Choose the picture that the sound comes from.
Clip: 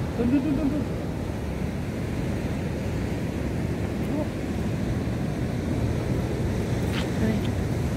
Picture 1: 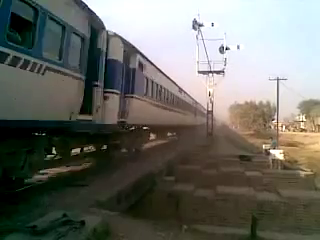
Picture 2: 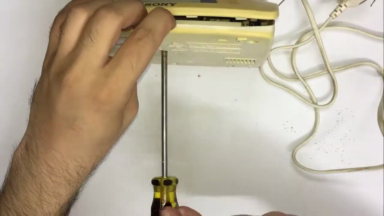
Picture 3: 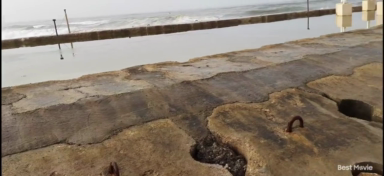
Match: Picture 3